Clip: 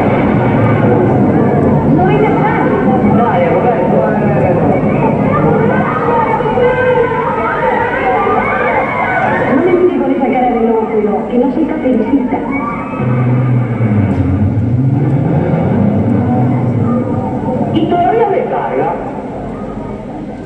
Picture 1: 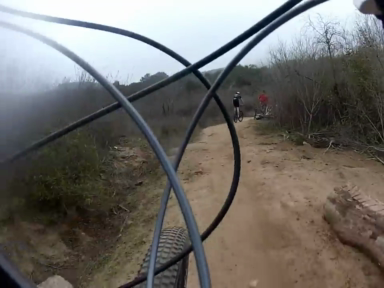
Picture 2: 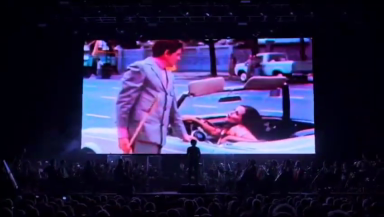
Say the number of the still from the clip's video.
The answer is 2